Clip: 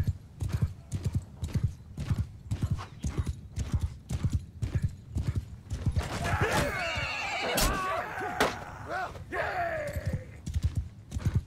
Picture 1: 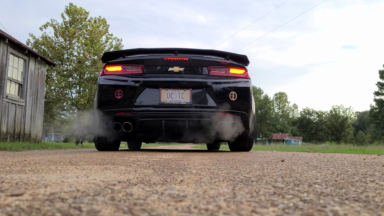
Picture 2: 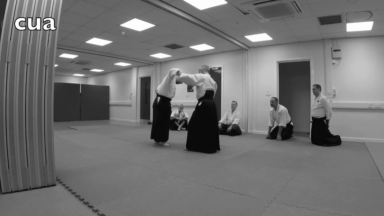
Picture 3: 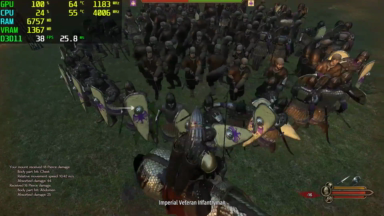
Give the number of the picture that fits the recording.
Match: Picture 3